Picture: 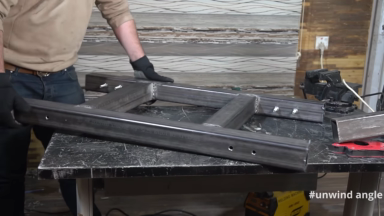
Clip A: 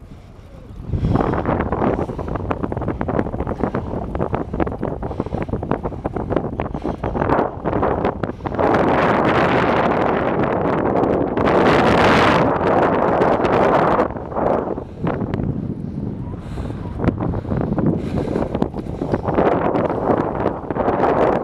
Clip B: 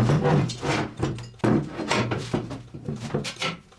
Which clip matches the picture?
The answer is B